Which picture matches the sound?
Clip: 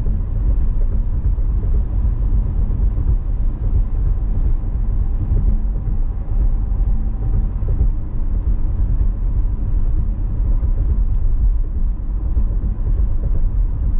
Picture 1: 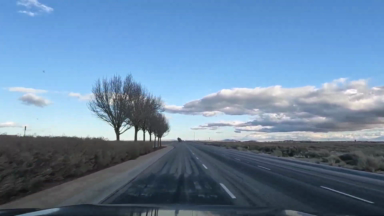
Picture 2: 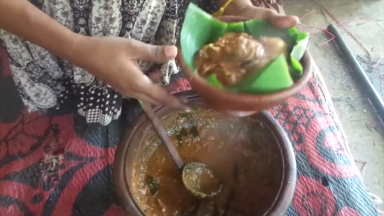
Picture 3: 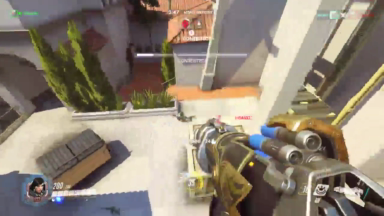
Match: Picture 1